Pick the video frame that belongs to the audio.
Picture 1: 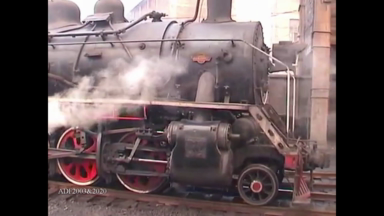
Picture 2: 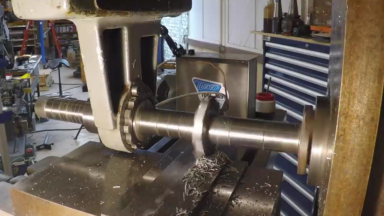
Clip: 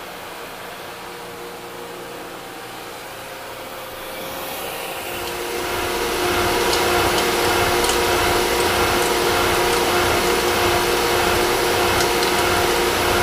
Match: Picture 2